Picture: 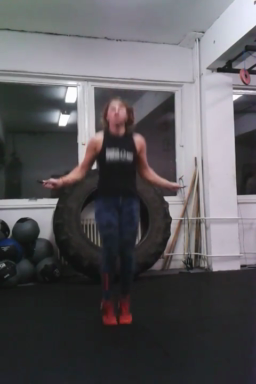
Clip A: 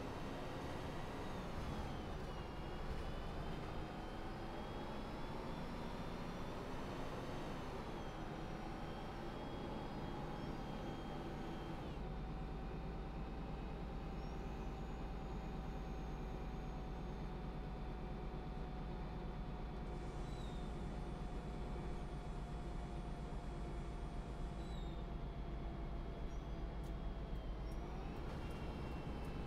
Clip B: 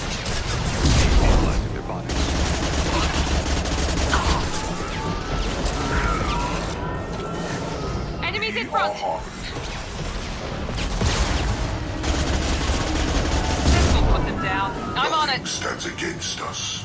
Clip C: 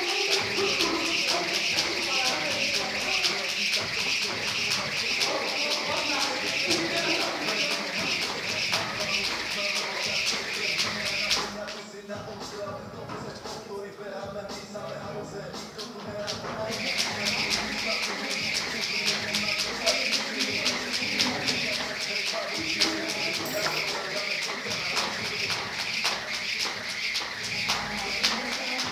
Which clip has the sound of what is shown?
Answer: C